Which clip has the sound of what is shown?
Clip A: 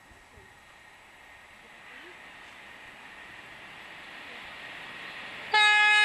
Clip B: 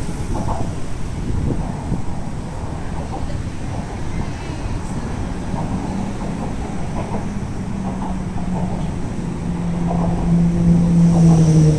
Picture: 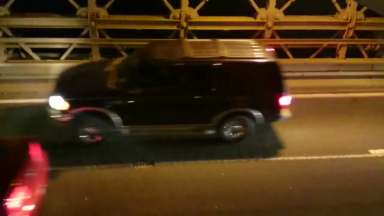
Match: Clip B